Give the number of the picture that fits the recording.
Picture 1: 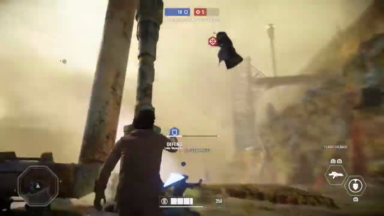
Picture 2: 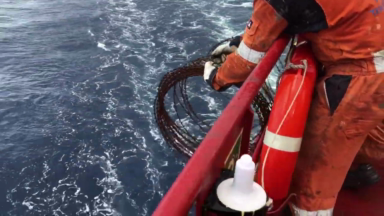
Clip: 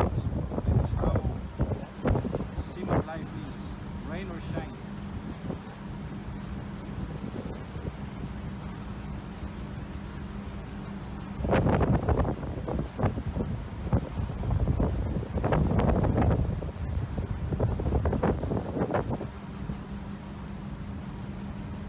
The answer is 2